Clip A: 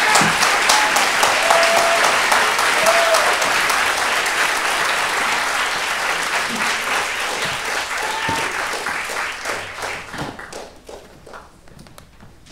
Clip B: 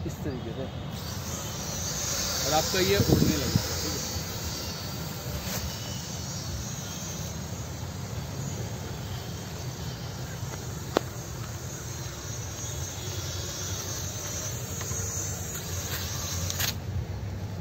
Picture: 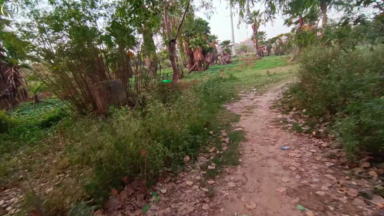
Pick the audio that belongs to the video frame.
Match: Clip B